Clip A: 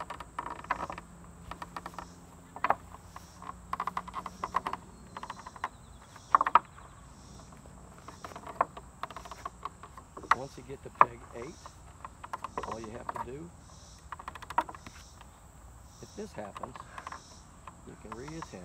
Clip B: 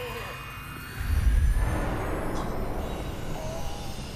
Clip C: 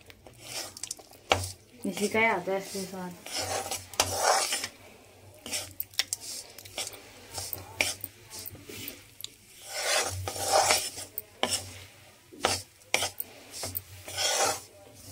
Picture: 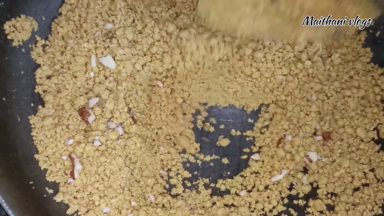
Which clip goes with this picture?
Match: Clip C